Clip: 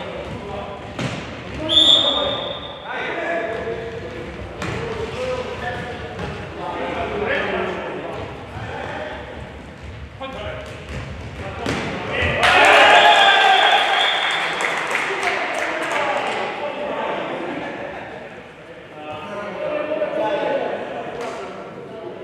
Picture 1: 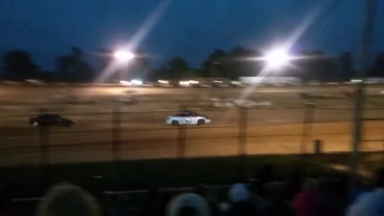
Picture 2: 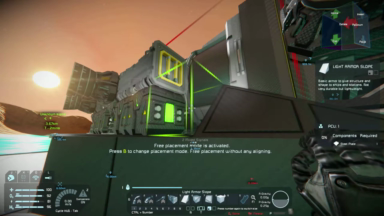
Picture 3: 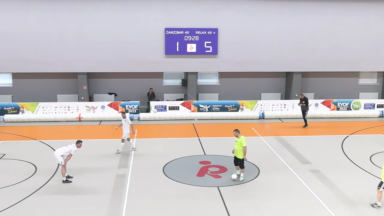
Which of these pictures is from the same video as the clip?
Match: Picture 3